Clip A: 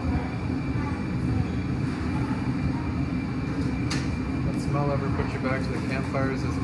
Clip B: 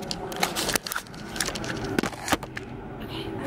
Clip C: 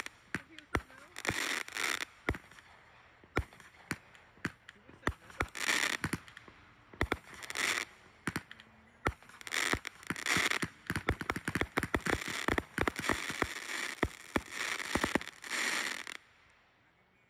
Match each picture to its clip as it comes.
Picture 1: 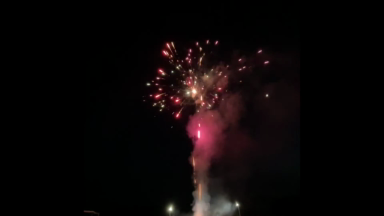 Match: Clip C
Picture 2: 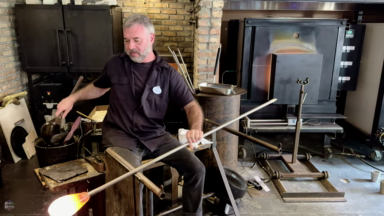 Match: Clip A